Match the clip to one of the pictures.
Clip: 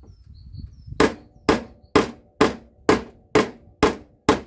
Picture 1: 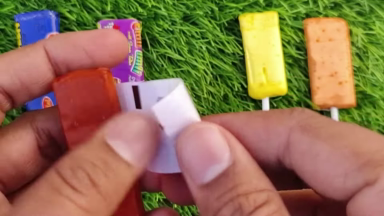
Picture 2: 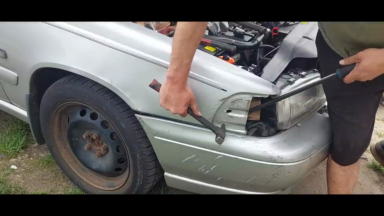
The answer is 2